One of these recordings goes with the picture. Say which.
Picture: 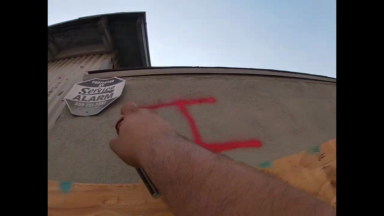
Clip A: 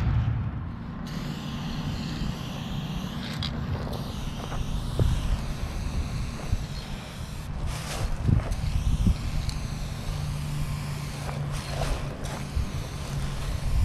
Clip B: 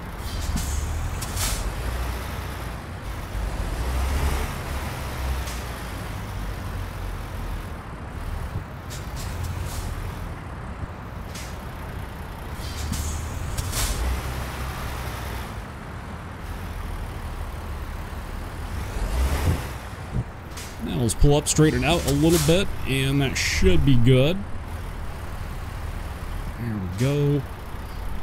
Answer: A